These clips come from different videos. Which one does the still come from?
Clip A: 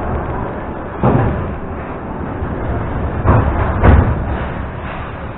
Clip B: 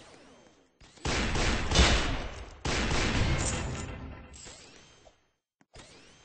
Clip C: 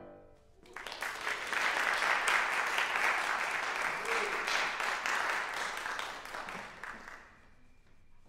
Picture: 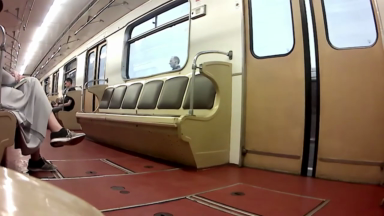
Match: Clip A